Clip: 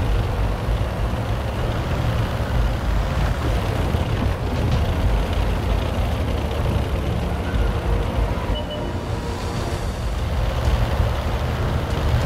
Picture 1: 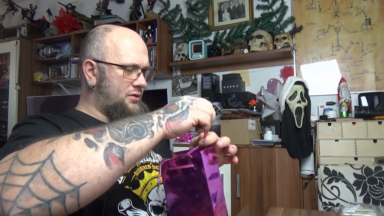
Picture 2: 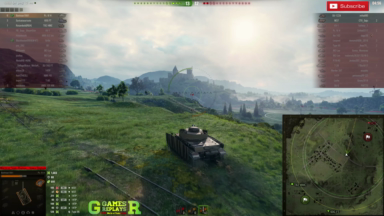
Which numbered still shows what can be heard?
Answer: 2